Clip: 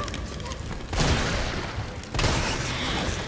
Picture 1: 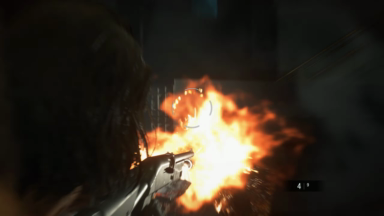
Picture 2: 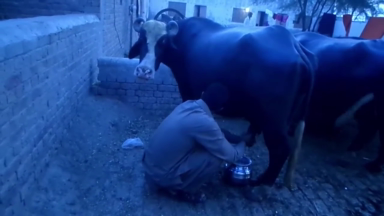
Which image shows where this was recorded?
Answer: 1